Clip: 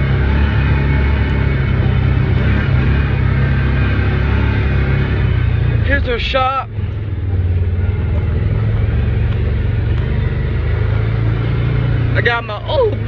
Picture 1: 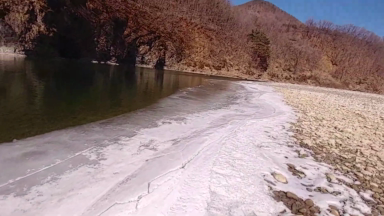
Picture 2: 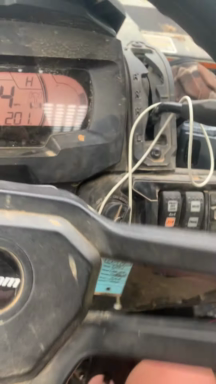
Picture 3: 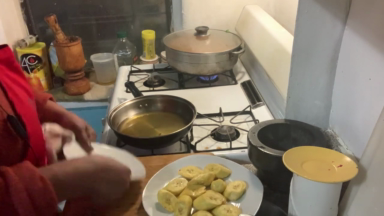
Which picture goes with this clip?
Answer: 2